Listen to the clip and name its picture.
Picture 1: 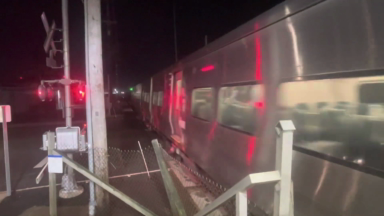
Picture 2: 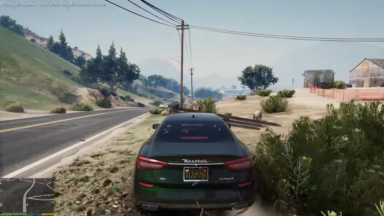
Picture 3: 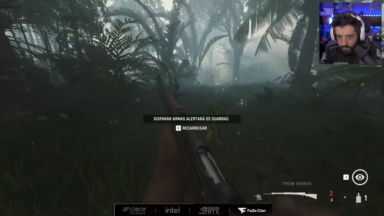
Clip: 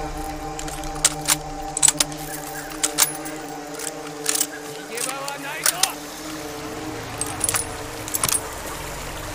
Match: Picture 3